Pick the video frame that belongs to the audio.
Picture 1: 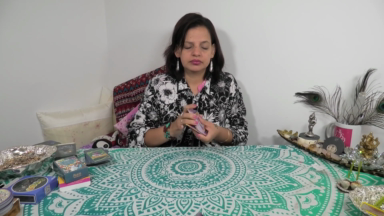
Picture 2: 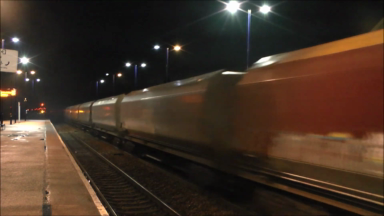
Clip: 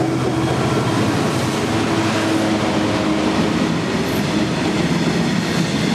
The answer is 2